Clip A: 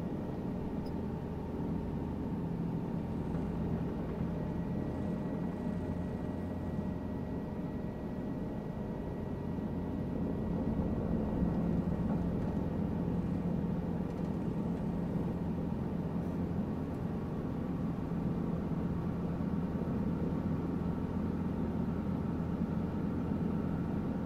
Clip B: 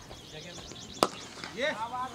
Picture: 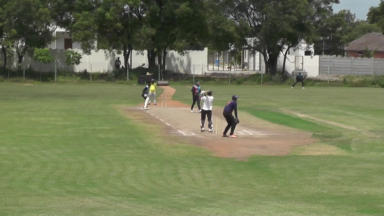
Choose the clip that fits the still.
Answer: B